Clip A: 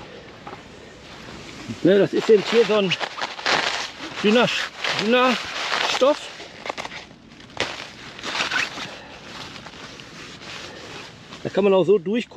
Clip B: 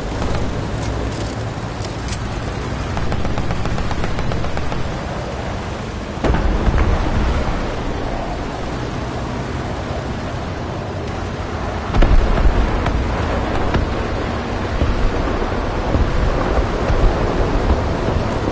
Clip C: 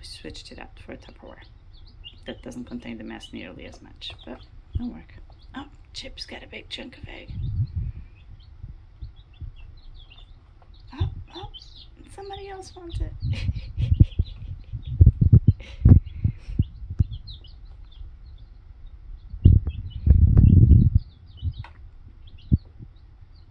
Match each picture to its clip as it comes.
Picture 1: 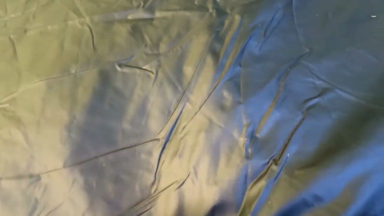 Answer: A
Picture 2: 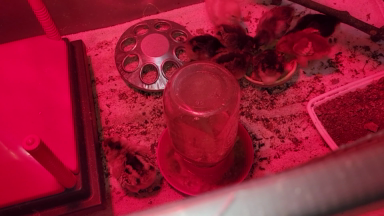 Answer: C